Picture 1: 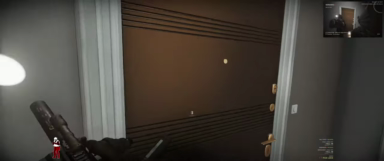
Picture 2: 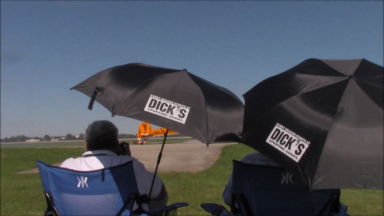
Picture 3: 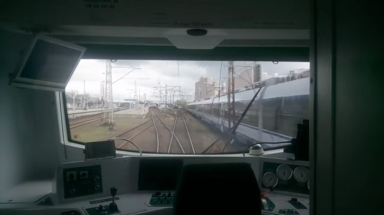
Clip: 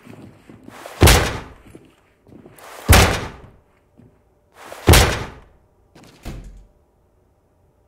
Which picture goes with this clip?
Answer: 1